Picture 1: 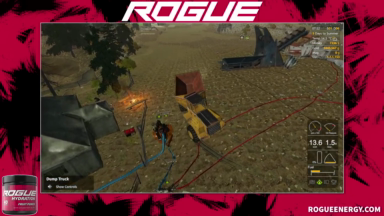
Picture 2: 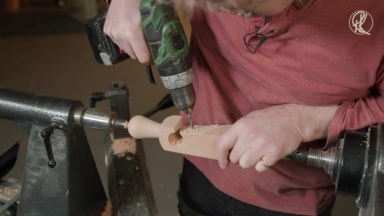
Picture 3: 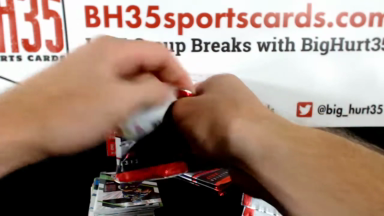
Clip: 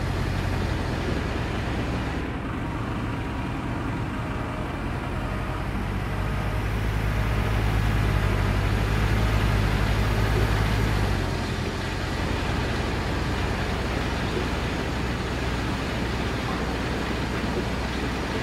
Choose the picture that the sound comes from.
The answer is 1